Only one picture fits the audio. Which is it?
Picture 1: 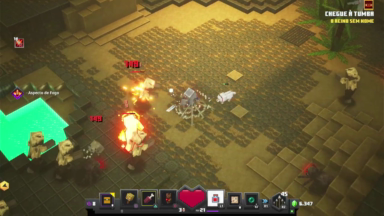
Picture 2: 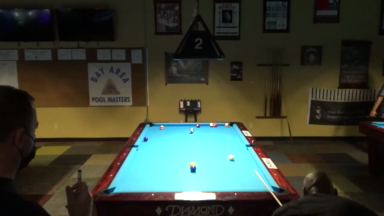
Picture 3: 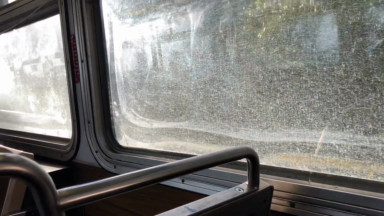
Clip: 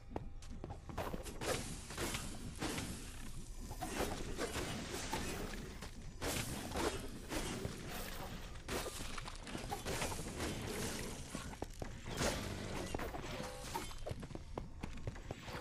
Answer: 1